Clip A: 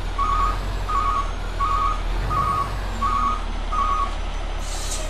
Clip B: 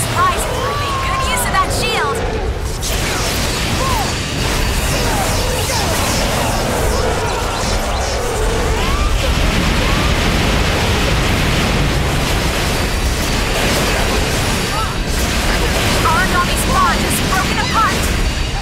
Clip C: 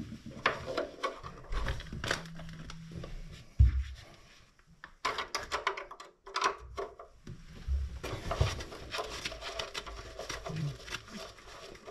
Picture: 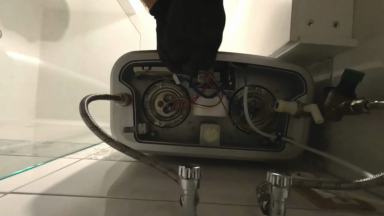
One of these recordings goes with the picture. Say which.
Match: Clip C